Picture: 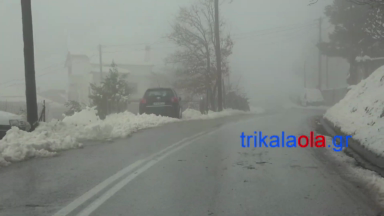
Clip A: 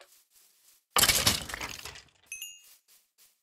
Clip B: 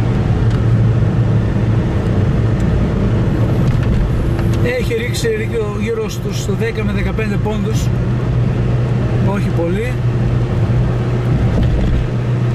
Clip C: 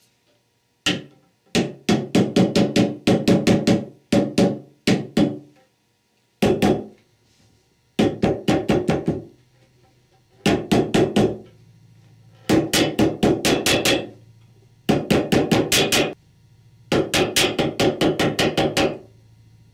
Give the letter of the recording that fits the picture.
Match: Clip B